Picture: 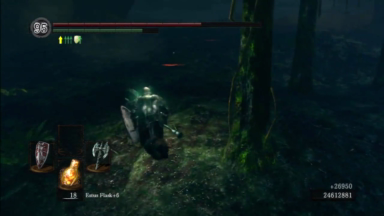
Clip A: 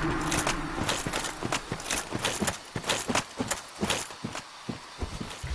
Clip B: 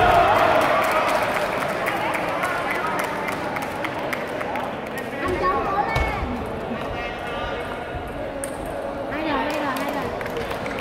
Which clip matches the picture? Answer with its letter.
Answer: A